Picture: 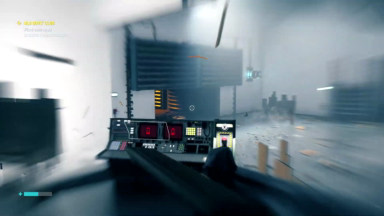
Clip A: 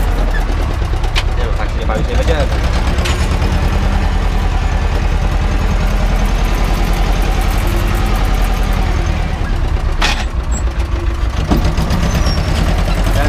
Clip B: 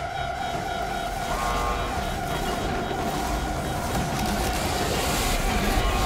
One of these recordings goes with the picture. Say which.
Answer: B